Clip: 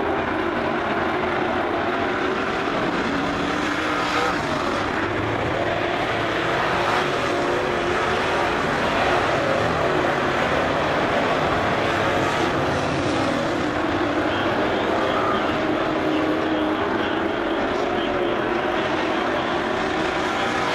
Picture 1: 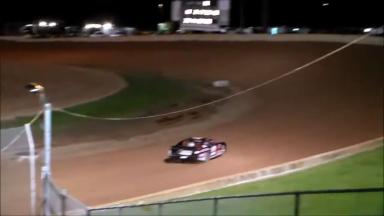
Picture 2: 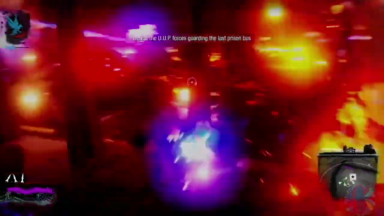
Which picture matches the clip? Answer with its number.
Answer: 1